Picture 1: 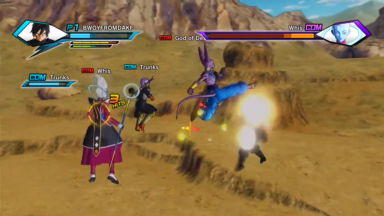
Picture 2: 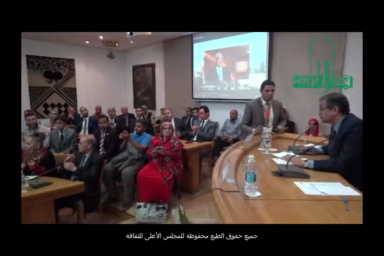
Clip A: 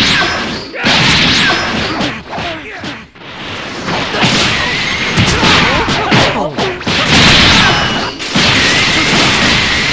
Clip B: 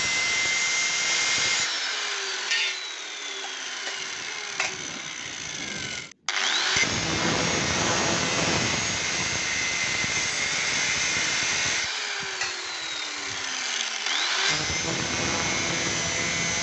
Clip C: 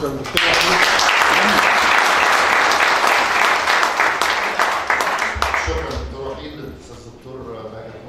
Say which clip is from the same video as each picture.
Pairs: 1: A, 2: C